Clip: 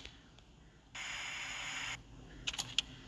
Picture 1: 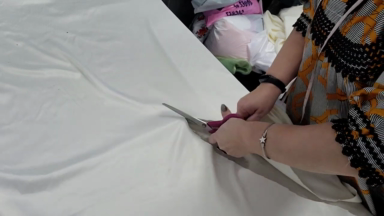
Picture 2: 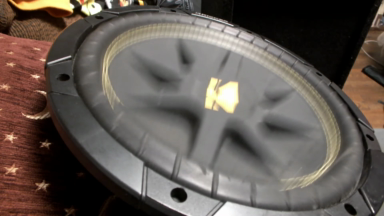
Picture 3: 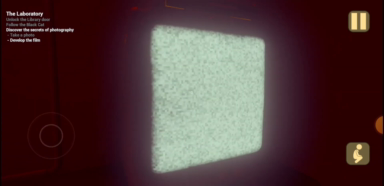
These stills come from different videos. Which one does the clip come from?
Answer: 3